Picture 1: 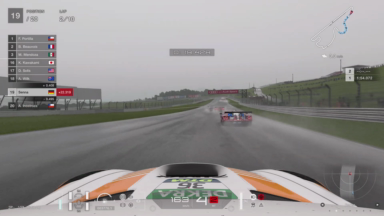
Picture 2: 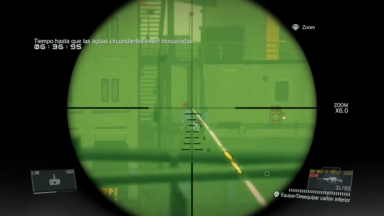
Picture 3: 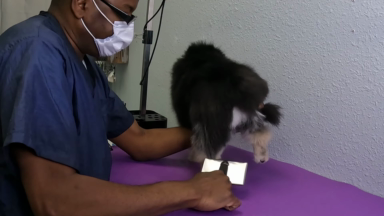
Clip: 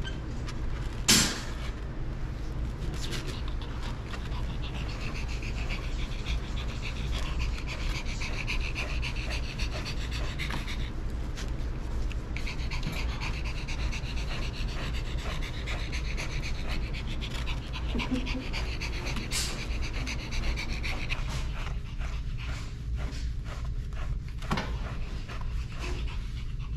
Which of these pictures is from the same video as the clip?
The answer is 3